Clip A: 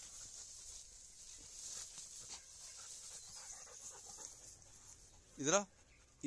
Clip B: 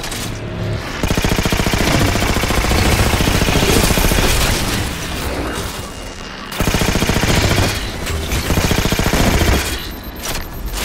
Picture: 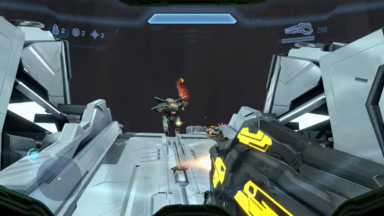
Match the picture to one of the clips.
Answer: B